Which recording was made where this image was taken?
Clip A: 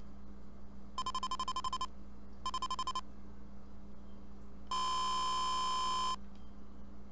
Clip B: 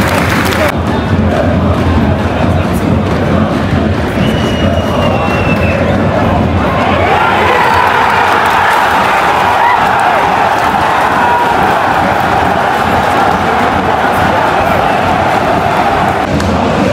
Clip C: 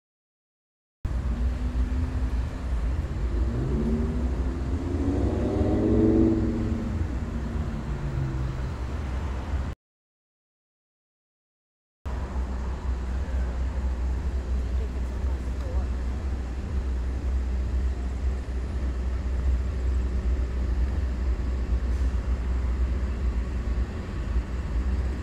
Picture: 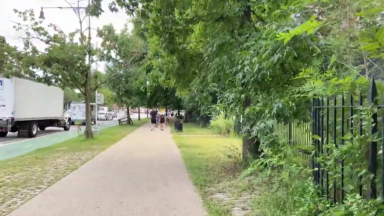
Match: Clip C